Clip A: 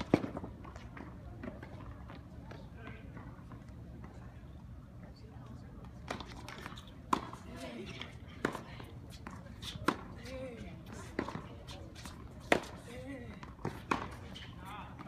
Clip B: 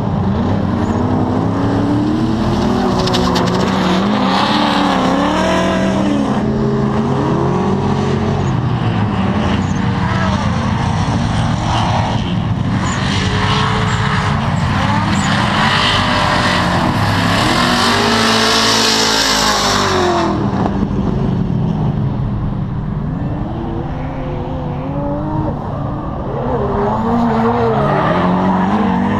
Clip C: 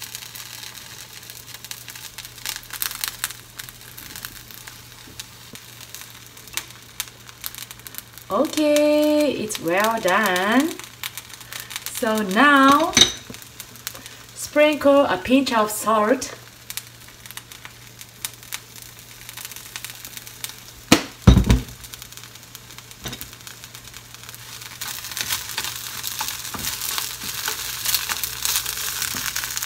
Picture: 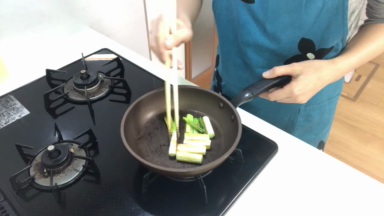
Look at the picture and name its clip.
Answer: C